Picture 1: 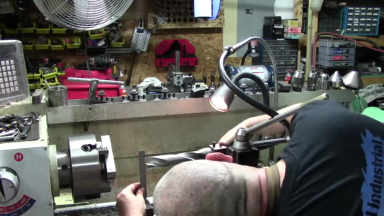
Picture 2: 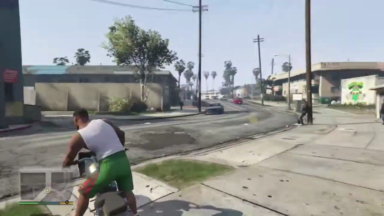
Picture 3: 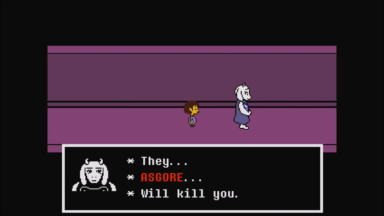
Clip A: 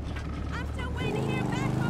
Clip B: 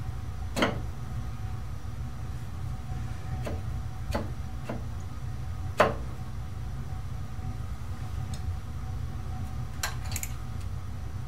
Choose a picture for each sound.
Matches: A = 2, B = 1